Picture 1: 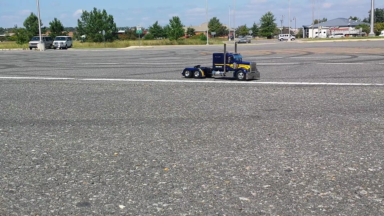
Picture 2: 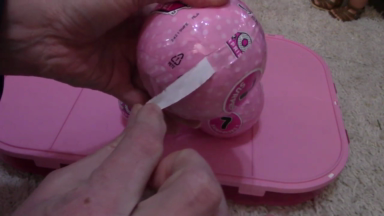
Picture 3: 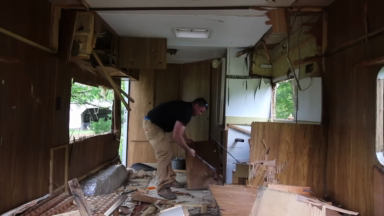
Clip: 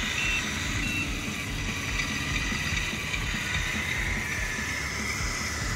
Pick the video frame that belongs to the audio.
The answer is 1